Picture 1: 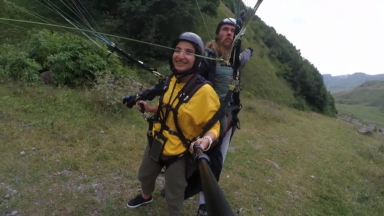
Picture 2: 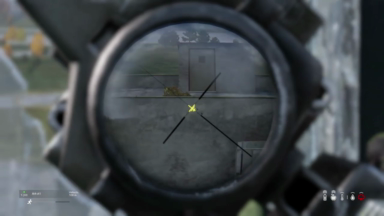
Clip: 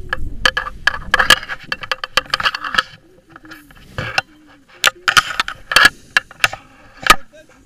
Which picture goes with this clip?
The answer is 1